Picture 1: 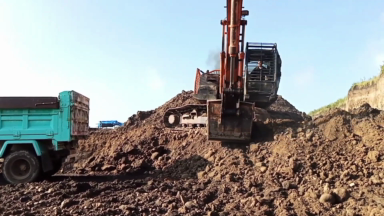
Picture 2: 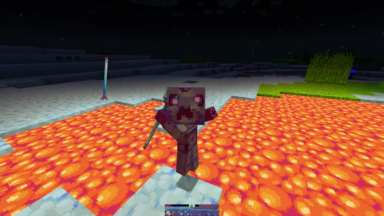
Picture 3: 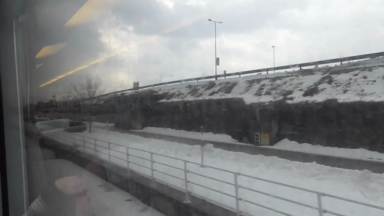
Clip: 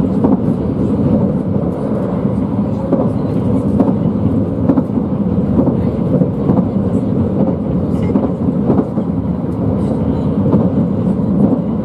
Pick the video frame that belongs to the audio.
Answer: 3